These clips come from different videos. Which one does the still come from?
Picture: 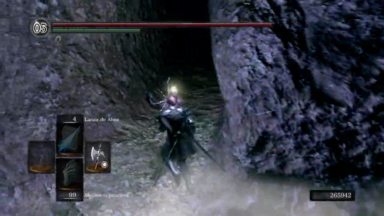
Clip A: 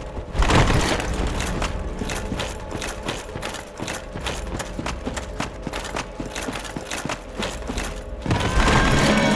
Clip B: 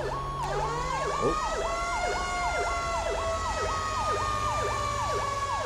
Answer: A